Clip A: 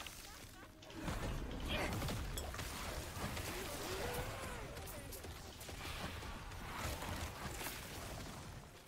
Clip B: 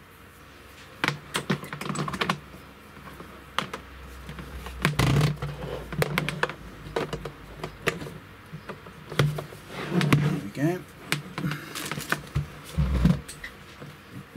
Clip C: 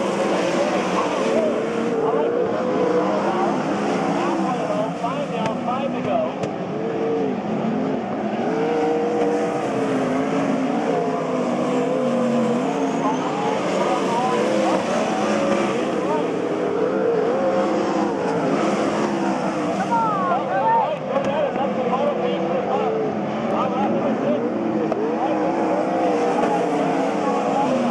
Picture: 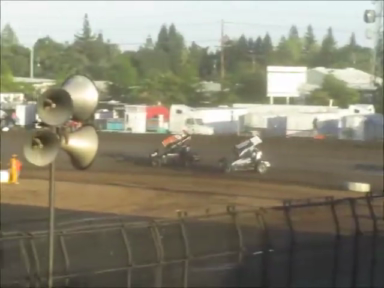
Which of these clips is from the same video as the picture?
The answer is C